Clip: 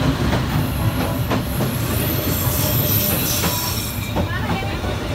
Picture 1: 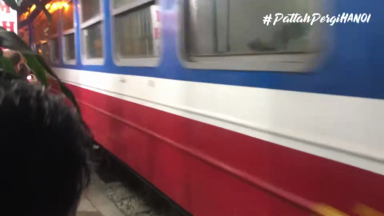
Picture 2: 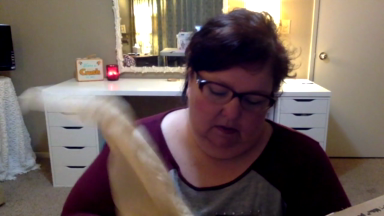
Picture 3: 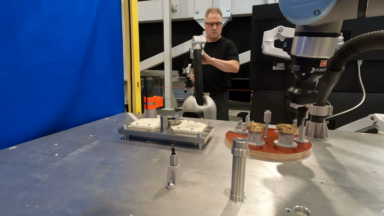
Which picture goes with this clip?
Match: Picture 1